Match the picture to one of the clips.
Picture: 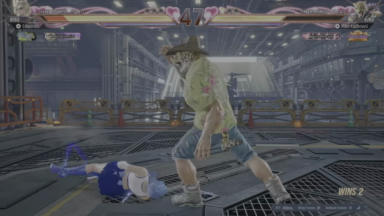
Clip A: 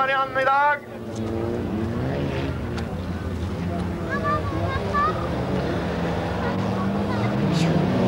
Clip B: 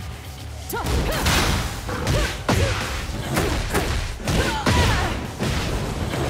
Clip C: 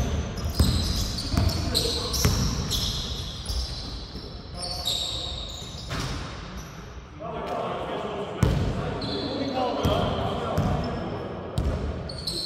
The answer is B